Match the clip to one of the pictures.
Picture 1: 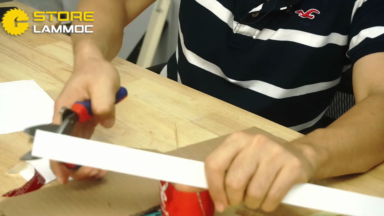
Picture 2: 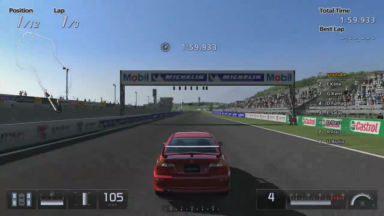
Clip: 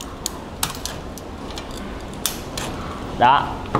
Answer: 1